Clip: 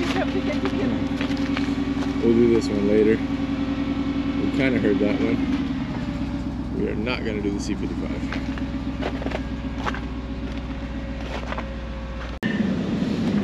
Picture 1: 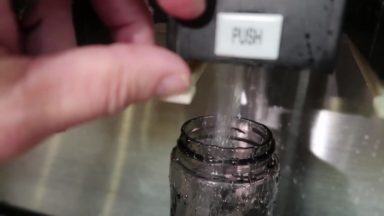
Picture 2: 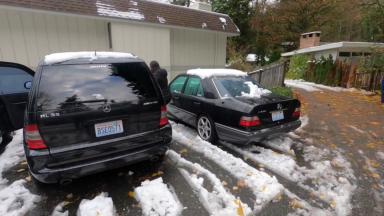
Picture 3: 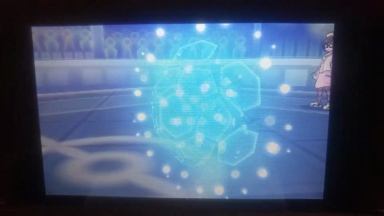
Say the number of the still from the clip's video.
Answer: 2